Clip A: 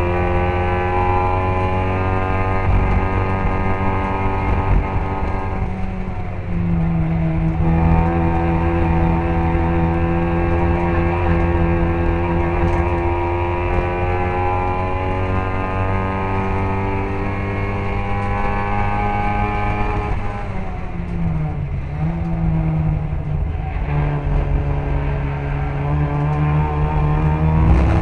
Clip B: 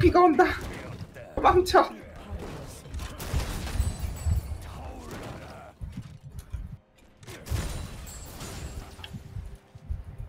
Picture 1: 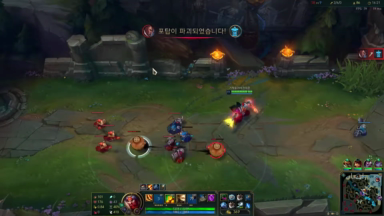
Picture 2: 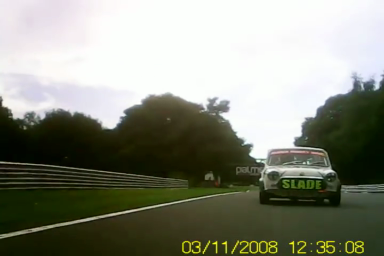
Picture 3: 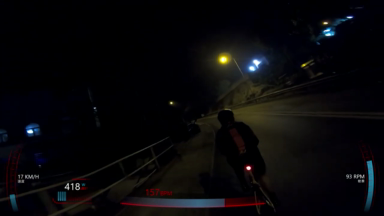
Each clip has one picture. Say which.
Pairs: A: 2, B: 1